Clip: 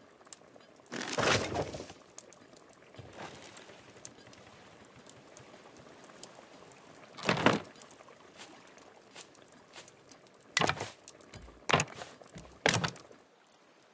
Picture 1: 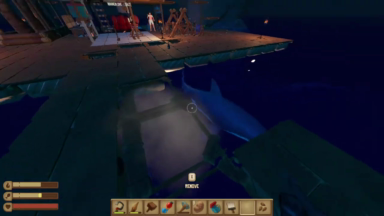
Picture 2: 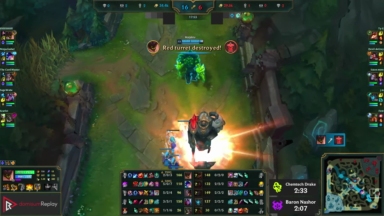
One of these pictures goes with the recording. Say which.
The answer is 1